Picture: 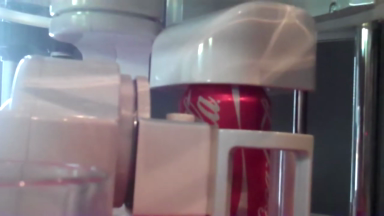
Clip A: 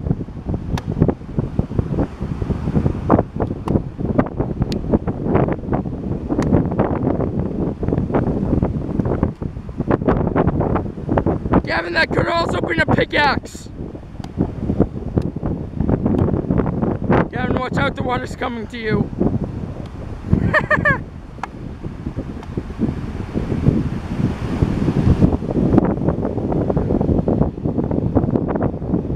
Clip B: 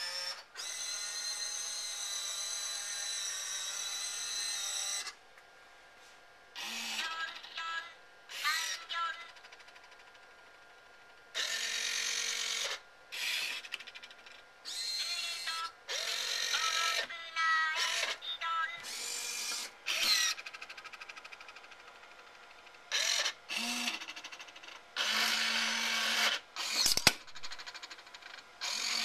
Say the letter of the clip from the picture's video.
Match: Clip B